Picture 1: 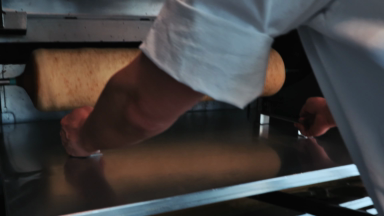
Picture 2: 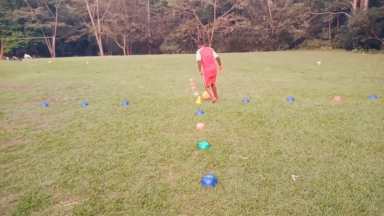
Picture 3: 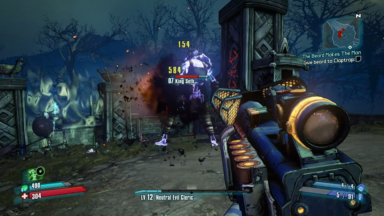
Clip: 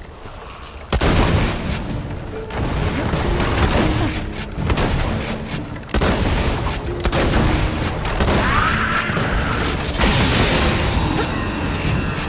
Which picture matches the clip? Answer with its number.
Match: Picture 3